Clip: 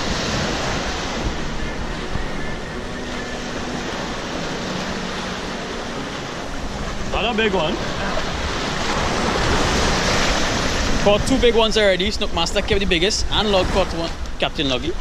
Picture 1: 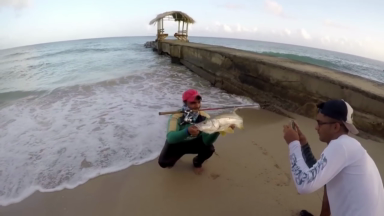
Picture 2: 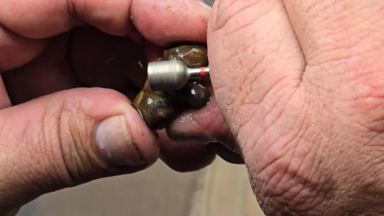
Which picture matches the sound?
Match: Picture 1